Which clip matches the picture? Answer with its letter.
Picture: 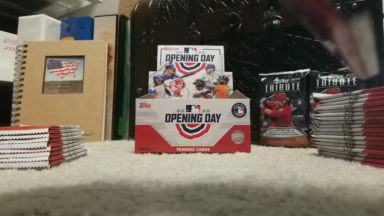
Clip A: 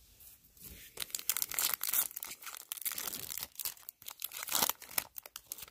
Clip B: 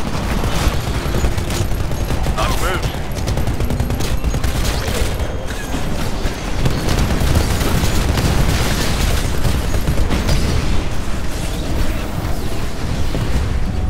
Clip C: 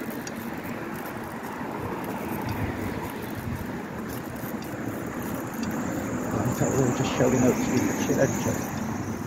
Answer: A